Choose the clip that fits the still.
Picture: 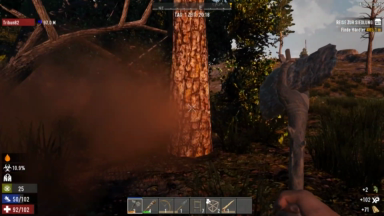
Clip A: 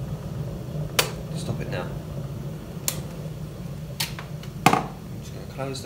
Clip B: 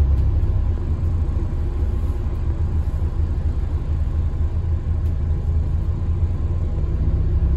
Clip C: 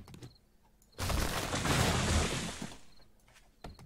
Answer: C